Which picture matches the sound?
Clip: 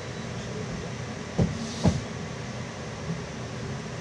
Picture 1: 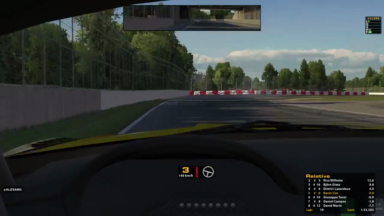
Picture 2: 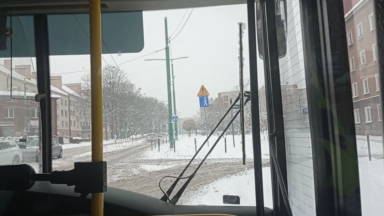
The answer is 2